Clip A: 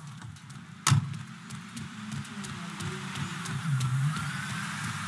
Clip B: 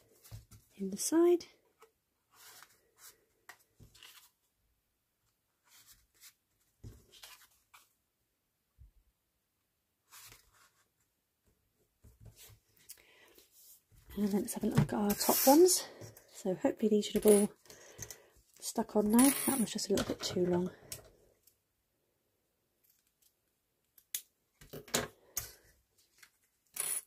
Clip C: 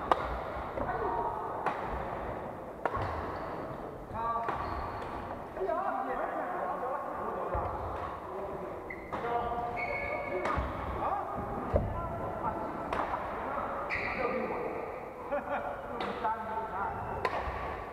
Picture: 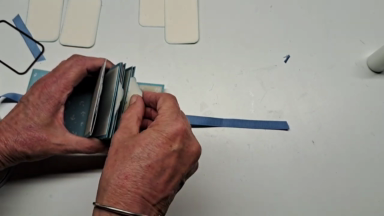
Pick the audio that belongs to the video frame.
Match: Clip B